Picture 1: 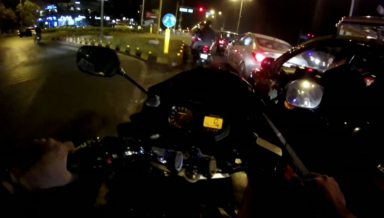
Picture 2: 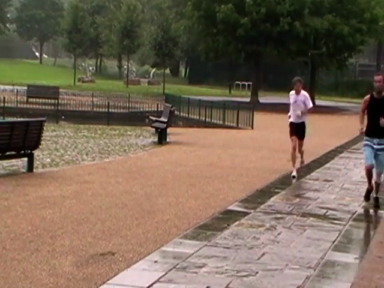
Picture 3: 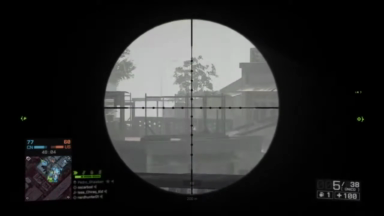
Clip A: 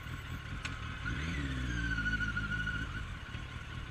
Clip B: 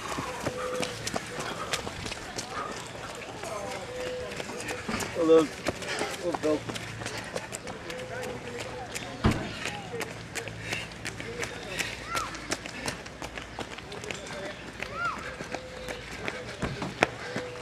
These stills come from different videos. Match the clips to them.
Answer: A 1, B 2